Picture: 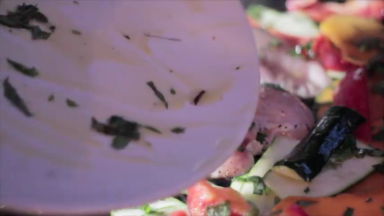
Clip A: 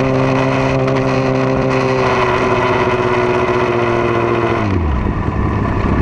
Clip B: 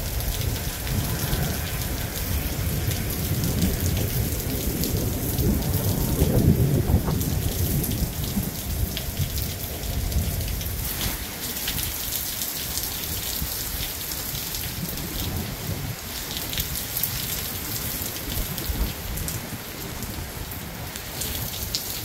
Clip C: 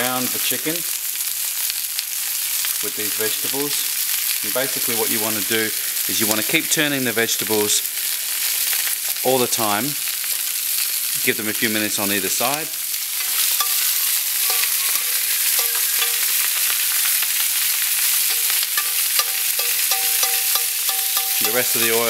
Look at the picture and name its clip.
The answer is C